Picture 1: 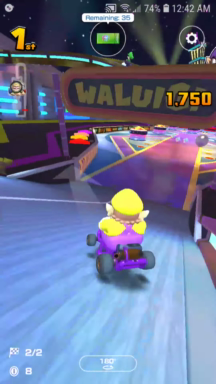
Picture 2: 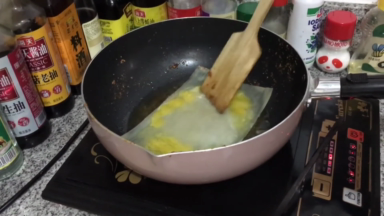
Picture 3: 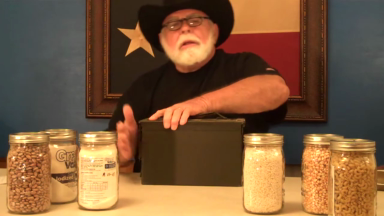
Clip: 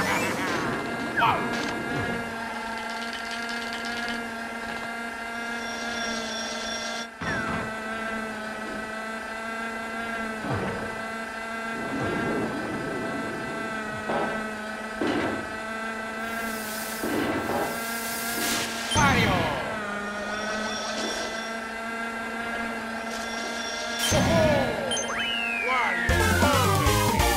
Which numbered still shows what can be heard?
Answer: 1